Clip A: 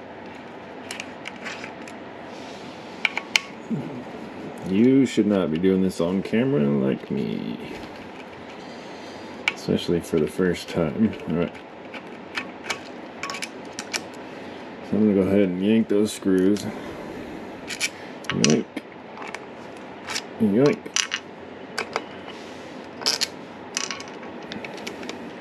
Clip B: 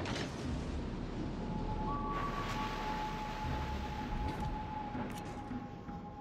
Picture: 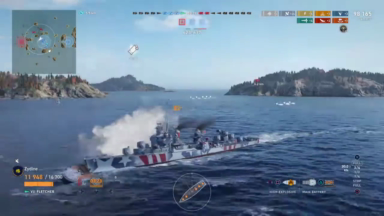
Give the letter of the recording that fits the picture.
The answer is B